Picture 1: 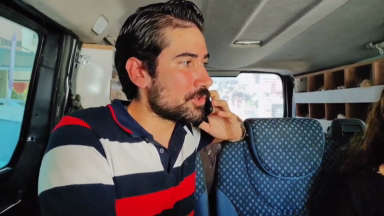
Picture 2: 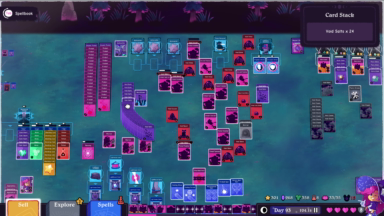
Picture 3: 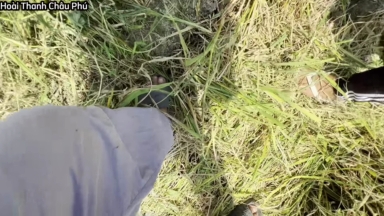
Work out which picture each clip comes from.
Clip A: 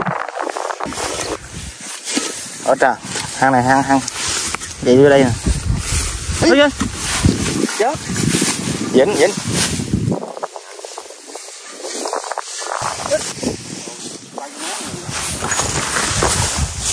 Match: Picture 3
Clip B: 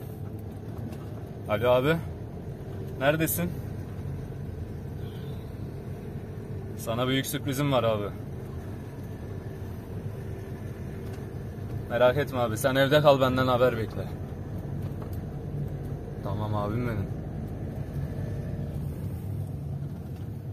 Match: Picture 1